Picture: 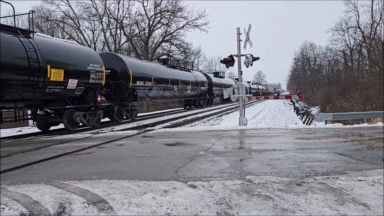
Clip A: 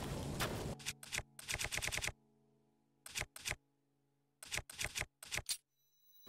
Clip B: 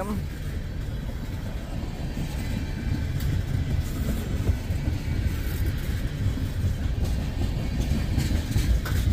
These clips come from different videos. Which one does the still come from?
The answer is B